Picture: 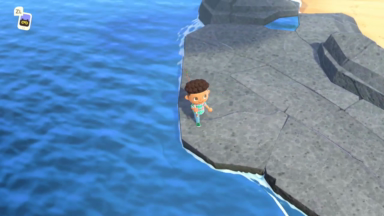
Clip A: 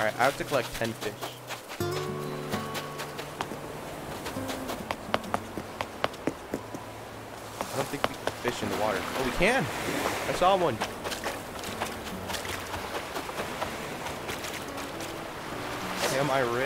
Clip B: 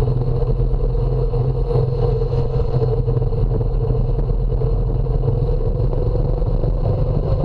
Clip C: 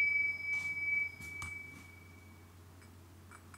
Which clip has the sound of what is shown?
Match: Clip A